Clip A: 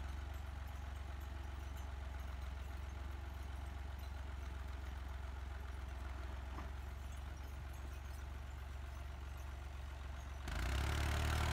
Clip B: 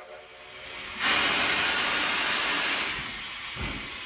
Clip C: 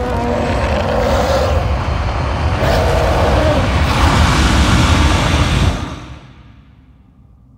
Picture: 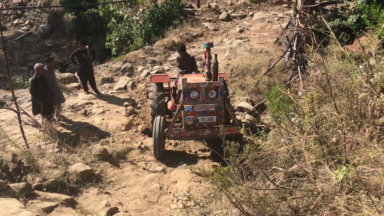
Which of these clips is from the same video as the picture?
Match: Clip A